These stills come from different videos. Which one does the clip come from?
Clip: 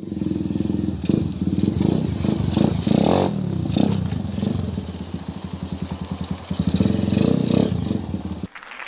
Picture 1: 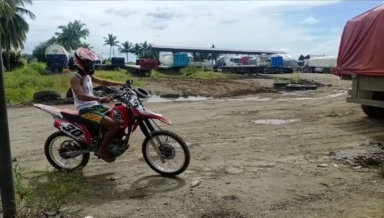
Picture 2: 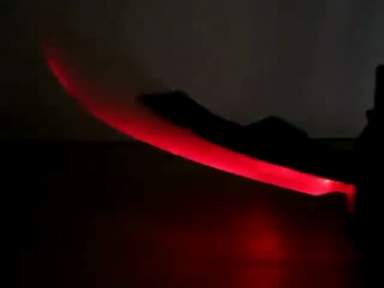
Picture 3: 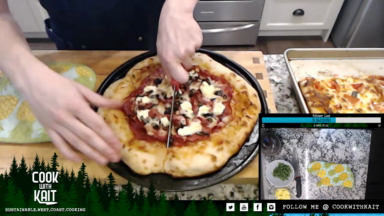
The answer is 1